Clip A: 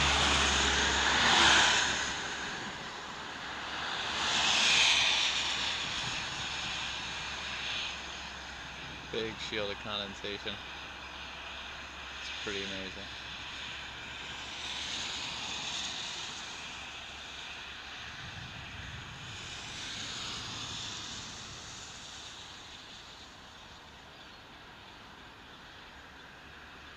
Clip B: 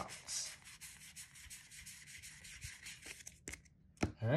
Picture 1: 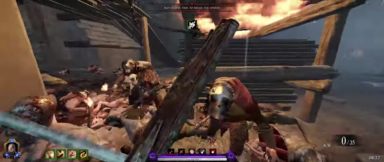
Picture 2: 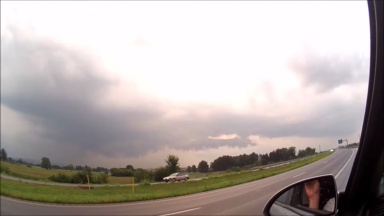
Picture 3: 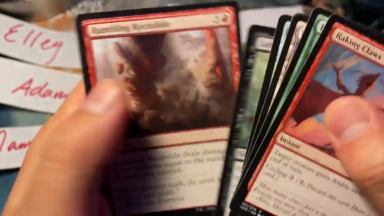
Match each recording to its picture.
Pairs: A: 2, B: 3